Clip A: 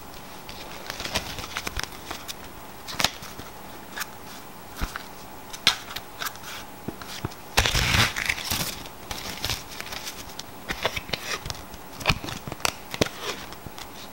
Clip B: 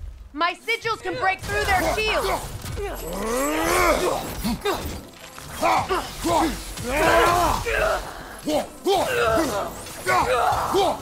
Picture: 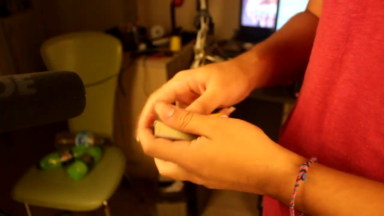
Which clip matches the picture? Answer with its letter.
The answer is A